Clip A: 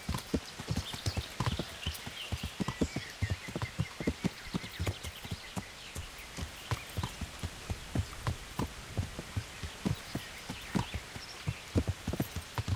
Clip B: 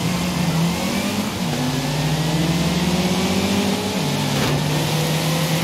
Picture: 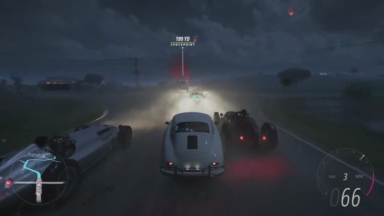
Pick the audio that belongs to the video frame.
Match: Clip B